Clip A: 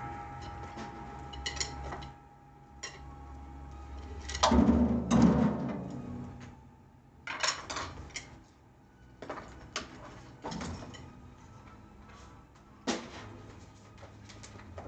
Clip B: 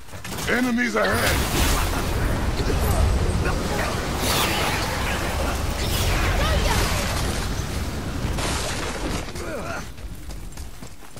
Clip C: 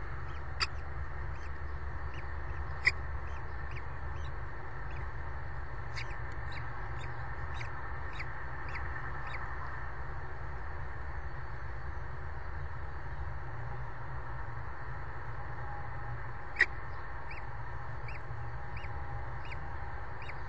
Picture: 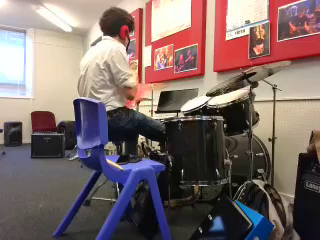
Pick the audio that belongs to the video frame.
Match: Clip A